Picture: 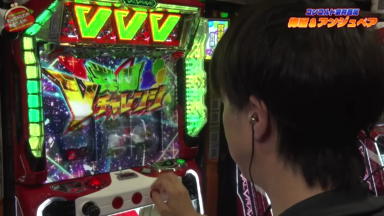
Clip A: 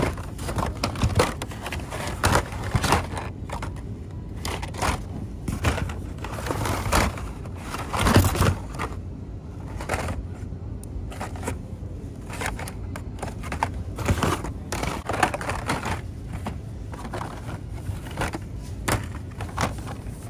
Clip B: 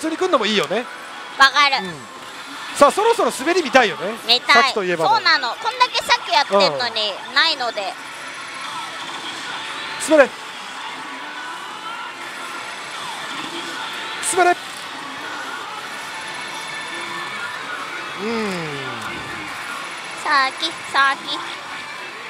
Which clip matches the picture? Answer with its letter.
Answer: B